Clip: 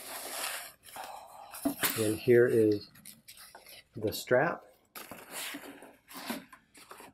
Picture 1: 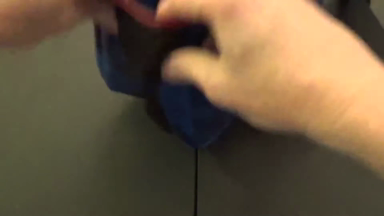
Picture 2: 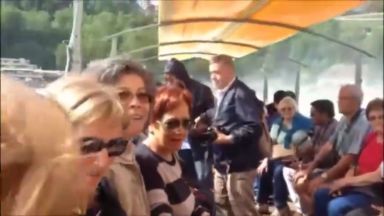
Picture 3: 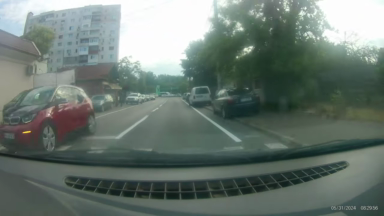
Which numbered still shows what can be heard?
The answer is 1